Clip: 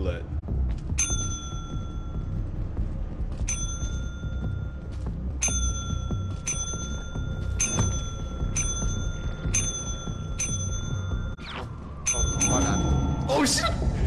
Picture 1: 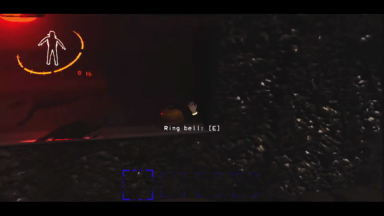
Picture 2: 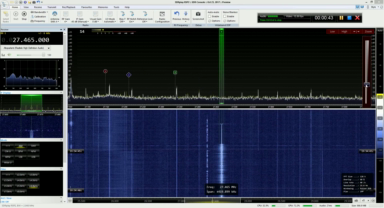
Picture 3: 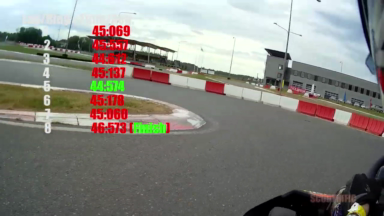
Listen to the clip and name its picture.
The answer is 1